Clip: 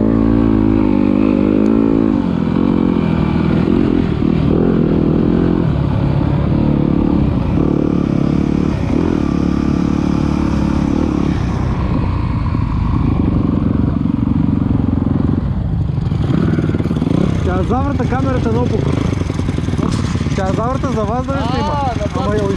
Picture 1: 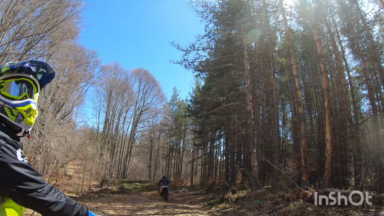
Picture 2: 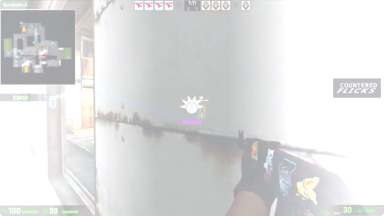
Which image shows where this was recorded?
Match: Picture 1